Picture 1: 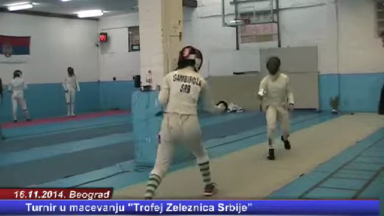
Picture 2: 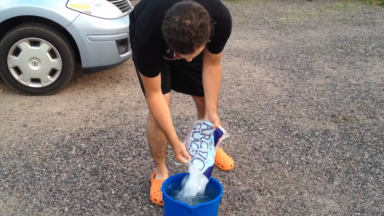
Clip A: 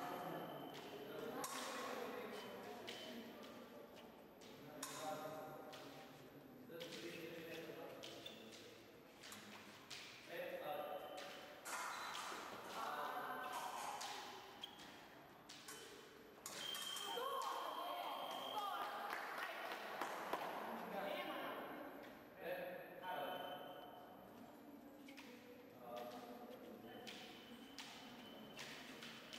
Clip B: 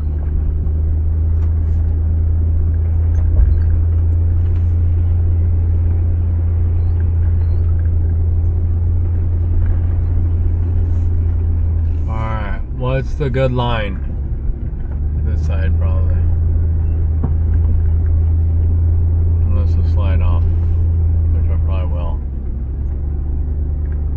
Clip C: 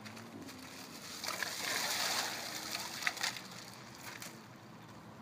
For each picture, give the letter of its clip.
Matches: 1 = A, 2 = C